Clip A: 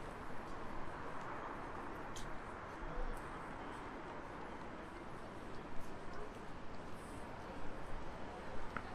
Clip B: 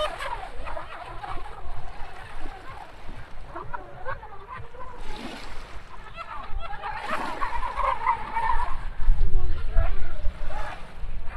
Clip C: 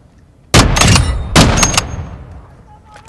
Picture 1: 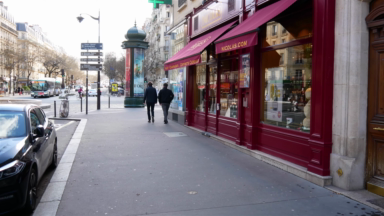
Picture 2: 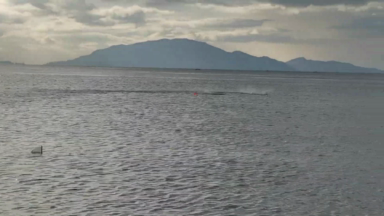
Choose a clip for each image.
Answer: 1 A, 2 B